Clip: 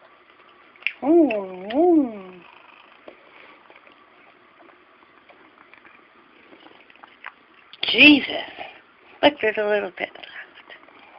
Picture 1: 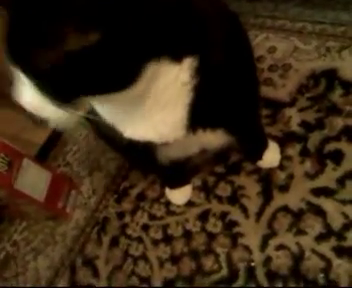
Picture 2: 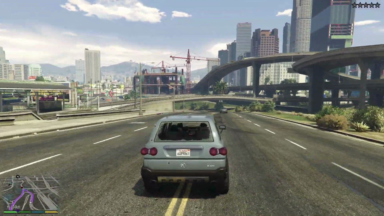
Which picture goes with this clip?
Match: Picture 1